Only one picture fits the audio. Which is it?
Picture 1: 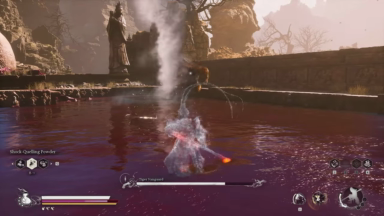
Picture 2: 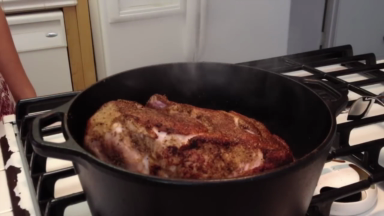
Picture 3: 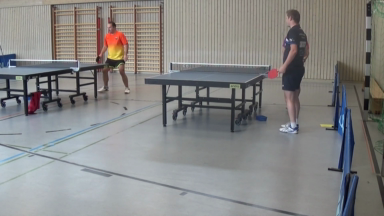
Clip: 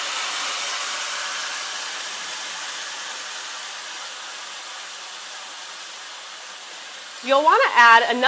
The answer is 2